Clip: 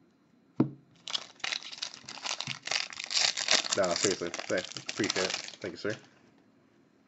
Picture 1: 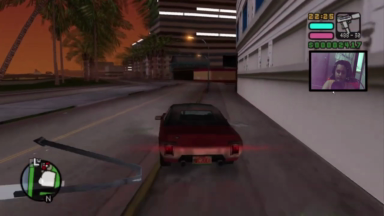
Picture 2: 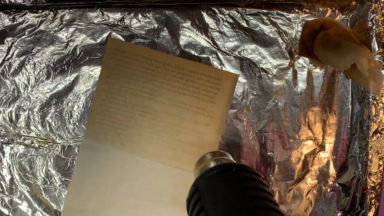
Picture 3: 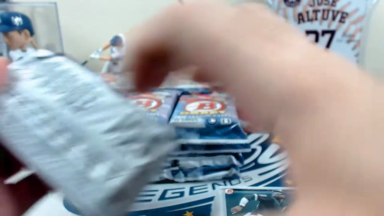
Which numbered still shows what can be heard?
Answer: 3